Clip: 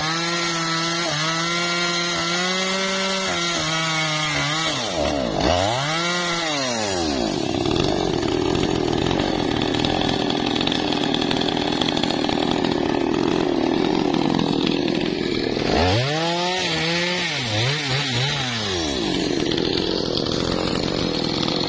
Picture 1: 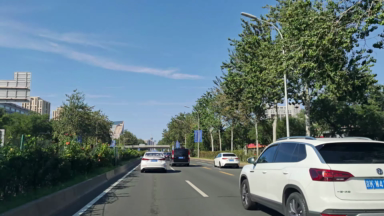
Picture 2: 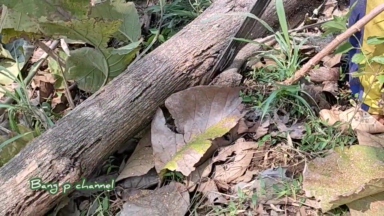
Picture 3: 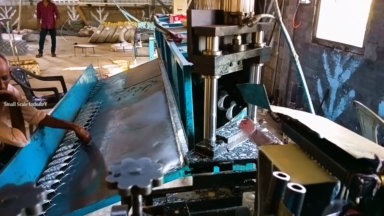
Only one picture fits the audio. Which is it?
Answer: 2